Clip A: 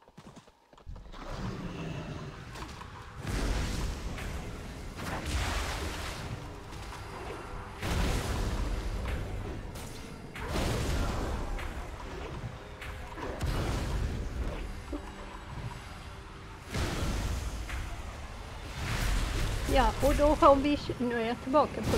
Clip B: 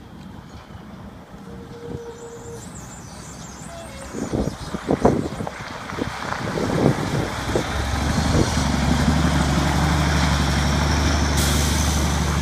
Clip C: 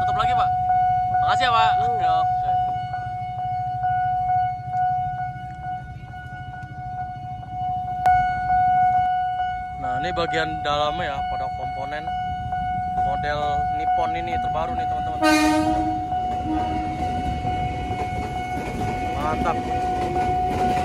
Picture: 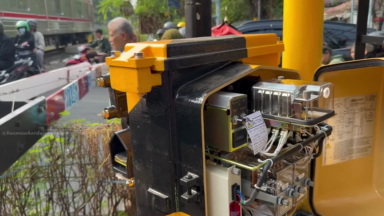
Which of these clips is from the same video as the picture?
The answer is C